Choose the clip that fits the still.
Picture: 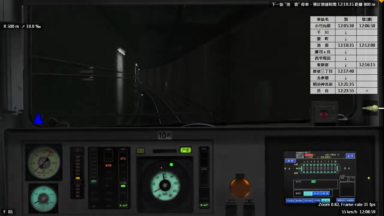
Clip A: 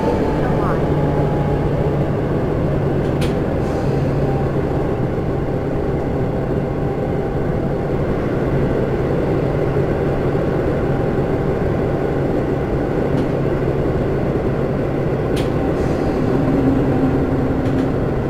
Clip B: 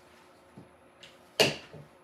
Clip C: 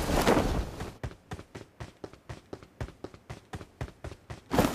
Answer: A